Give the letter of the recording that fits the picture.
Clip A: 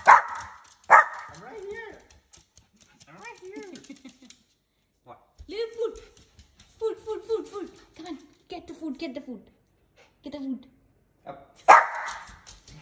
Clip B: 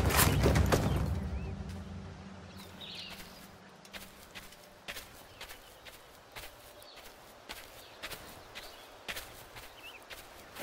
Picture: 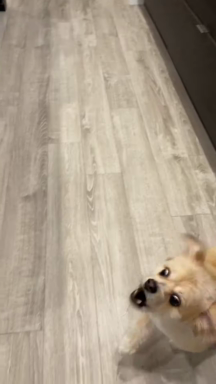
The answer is A